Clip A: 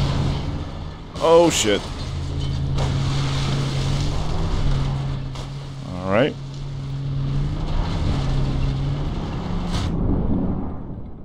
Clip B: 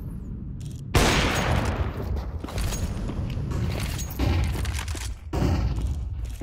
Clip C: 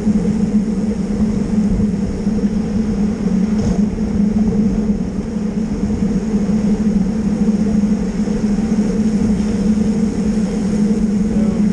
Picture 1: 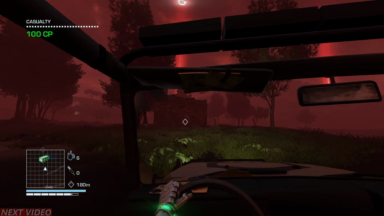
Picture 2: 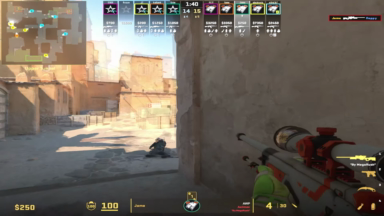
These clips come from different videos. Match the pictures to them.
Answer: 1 A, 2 B